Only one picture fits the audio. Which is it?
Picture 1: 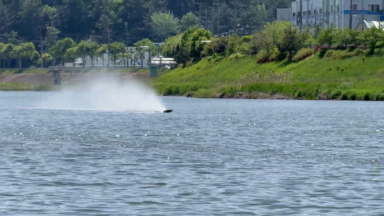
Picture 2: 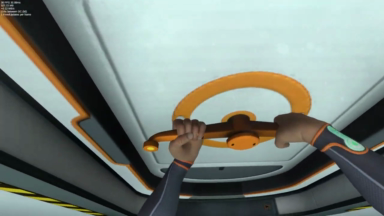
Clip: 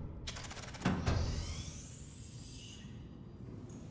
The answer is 2